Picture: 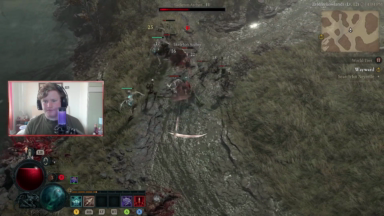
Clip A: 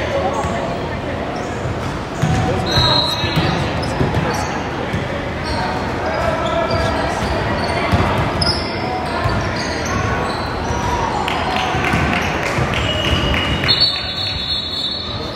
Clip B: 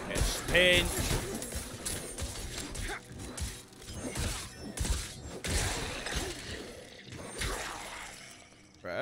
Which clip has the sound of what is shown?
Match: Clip B